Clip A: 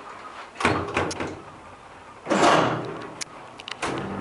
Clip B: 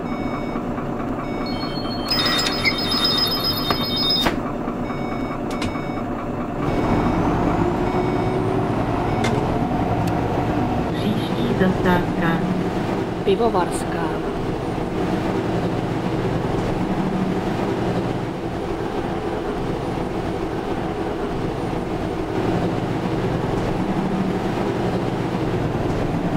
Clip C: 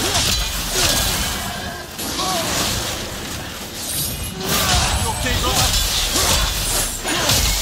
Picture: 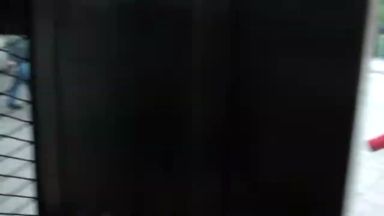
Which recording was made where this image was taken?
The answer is A